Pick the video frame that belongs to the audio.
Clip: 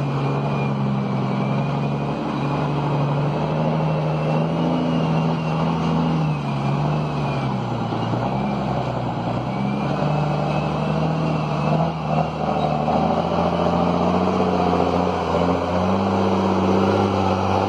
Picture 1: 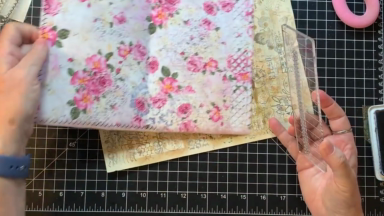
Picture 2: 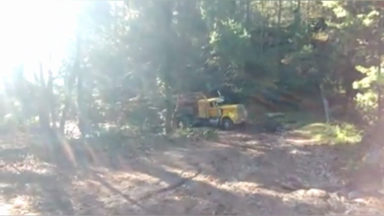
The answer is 2